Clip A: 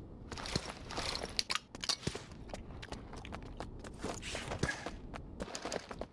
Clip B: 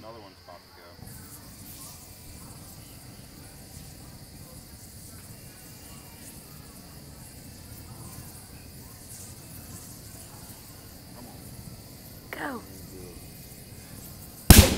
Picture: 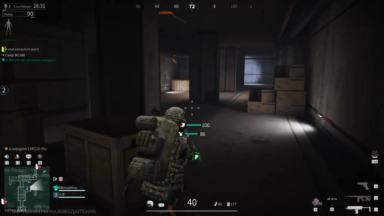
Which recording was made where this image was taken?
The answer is A